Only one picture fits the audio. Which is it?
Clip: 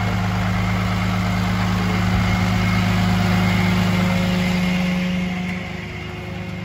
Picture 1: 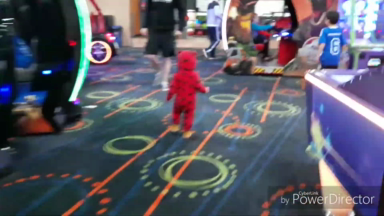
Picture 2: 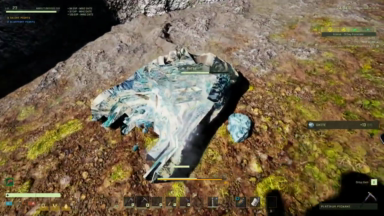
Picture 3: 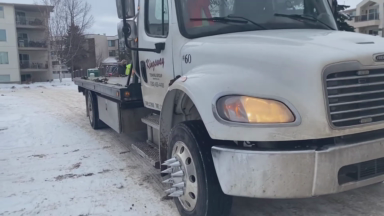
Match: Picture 3